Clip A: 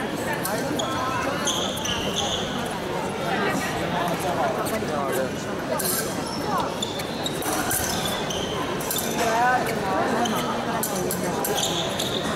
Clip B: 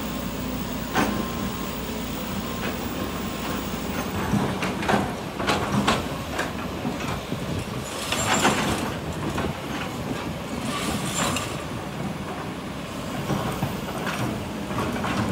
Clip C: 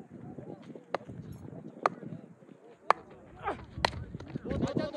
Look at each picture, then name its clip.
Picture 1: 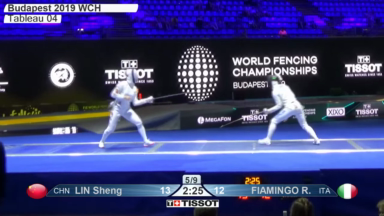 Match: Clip A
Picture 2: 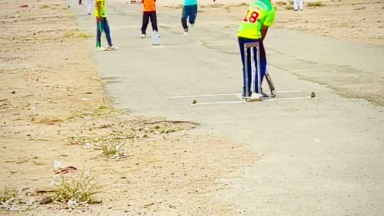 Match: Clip C